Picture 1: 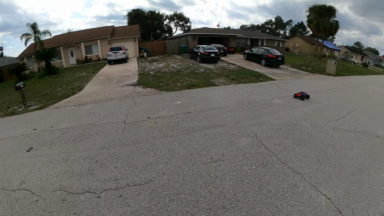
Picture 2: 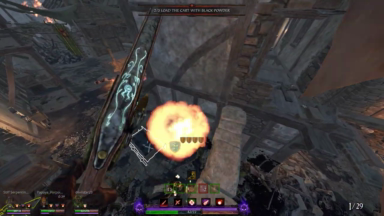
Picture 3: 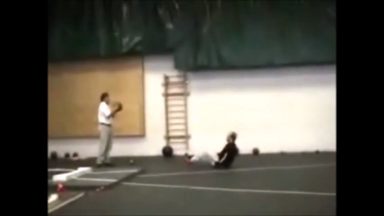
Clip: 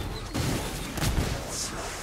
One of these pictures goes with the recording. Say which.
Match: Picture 2